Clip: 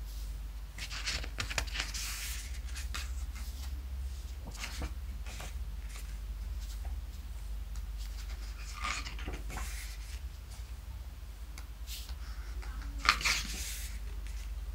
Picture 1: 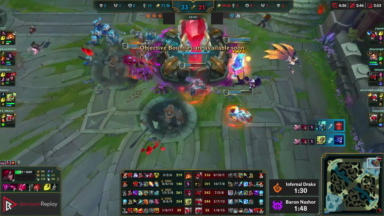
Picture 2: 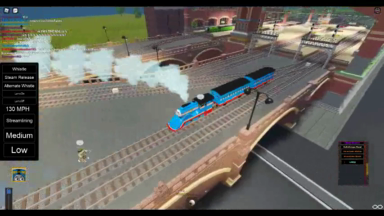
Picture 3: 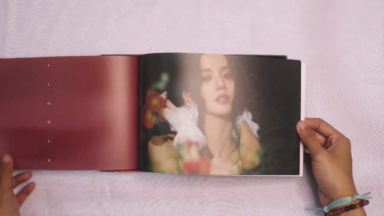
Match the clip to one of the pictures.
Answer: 3